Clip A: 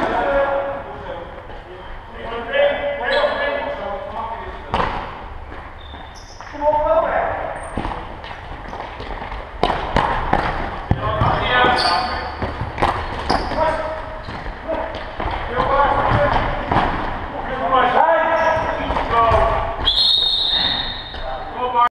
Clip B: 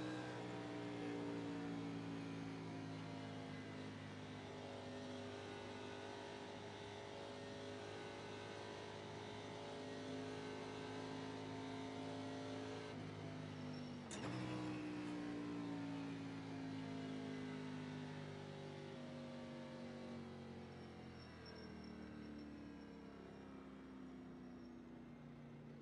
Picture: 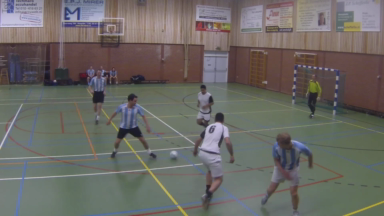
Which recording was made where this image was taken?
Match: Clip A